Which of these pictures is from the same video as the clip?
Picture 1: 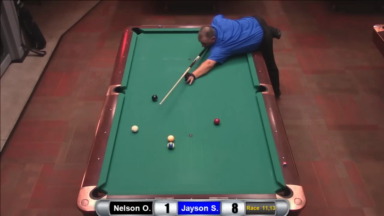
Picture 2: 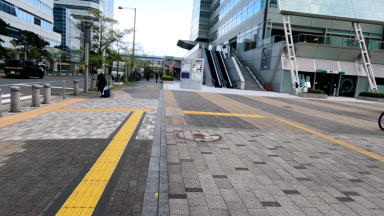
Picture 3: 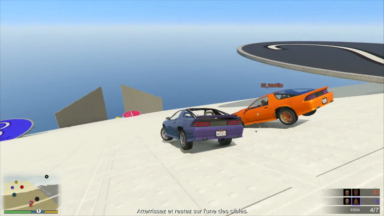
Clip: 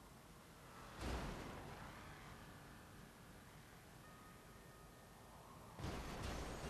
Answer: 3